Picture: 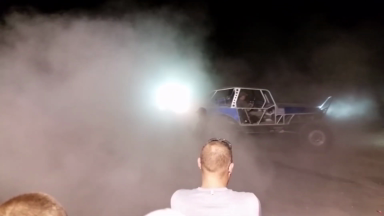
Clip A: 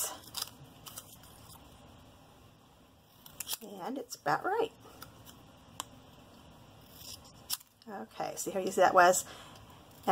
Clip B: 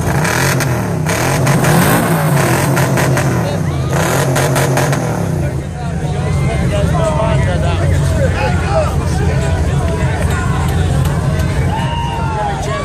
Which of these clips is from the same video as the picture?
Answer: B